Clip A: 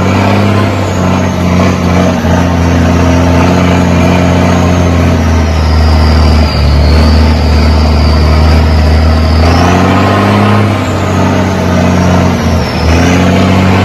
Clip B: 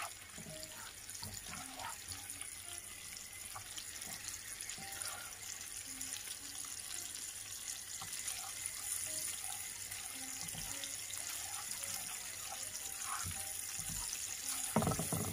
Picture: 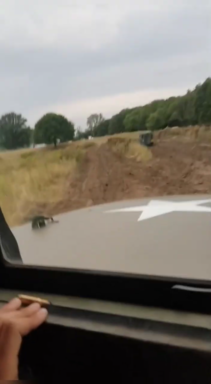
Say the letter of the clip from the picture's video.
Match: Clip A